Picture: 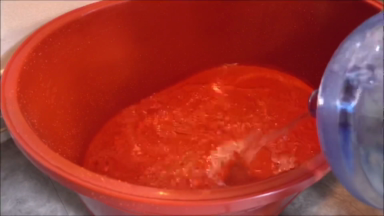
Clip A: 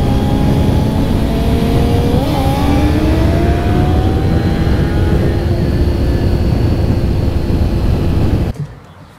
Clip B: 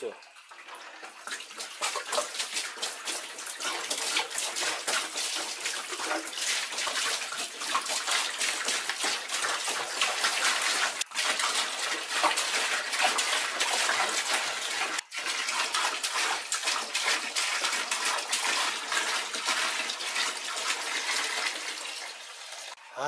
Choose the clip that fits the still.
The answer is B